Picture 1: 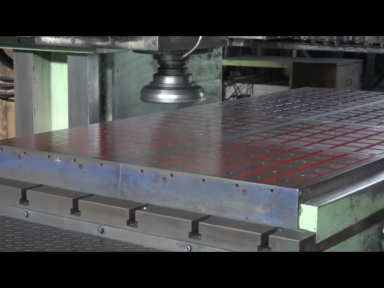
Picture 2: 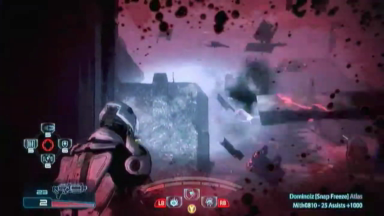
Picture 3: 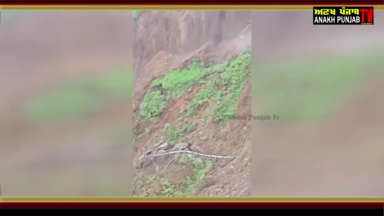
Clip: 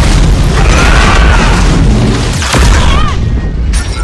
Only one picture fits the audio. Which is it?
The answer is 2